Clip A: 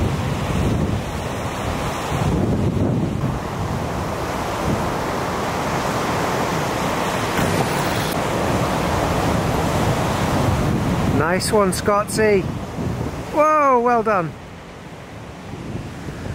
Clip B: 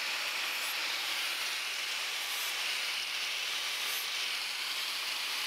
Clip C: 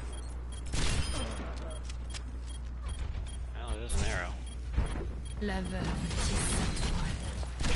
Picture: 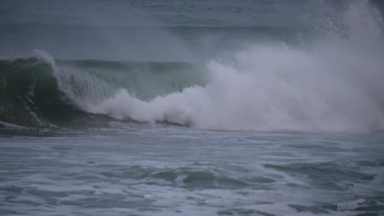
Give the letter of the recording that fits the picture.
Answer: A